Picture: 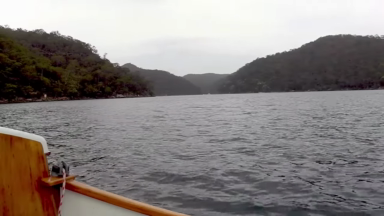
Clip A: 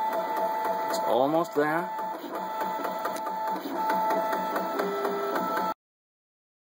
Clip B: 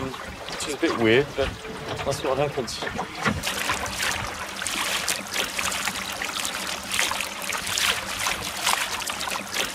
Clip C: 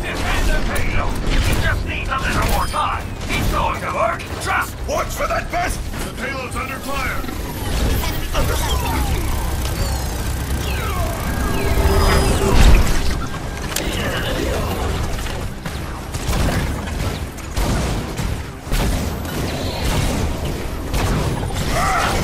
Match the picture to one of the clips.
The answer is B